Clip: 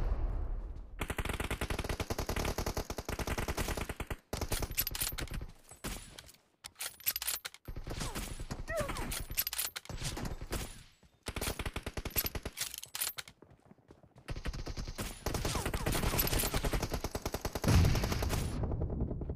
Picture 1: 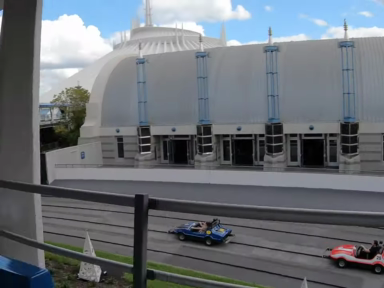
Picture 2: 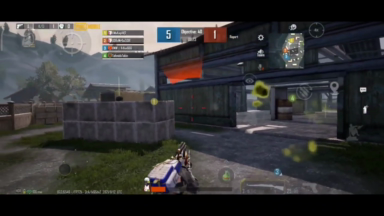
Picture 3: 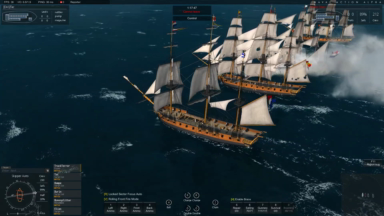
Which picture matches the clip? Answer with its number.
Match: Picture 2